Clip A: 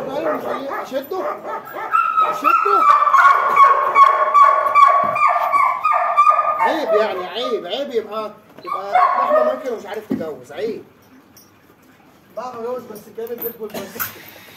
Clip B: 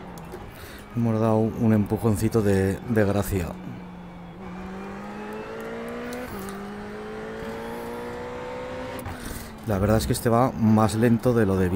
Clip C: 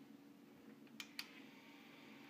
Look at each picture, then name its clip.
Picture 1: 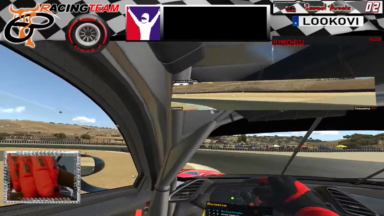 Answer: B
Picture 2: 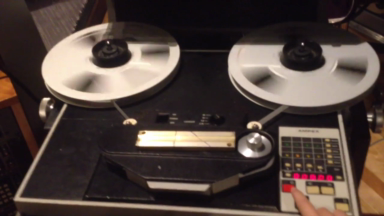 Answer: C